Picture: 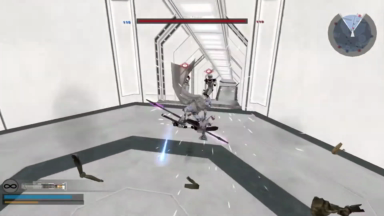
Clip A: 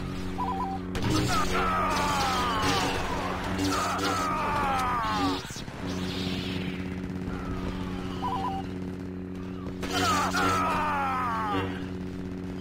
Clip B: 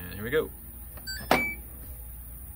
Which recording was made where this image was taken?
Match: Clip A